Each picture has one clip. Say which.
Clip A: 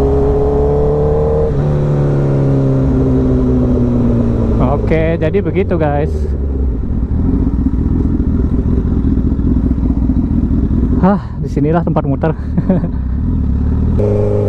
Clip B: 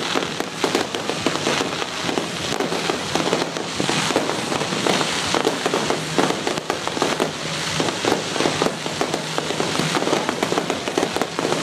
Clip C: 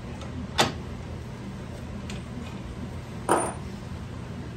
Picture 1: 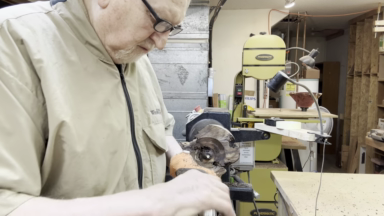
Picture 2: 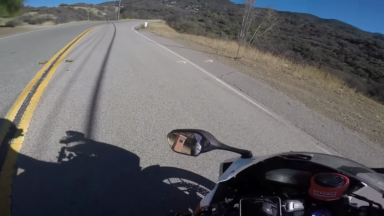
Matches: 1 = C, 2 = A